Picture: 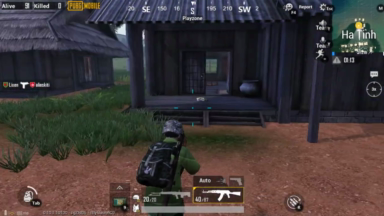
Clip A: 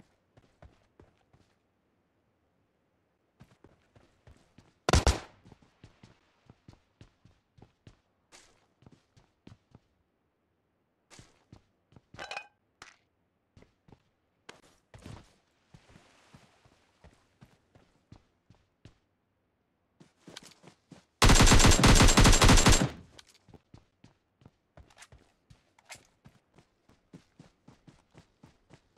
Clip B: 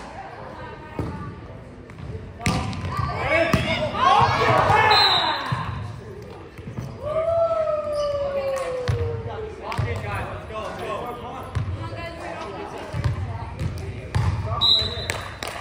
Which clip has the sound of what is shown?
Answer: A